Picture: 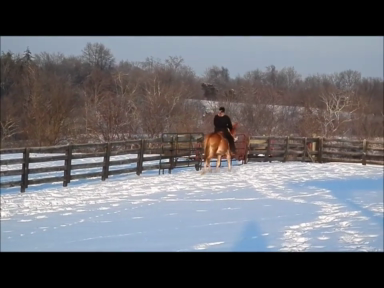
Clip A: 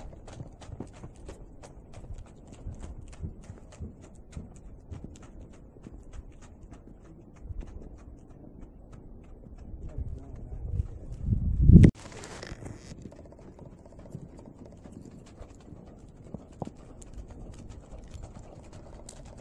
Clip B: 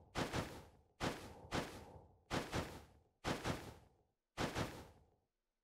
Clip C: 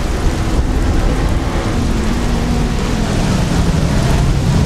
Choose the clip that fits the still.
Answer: A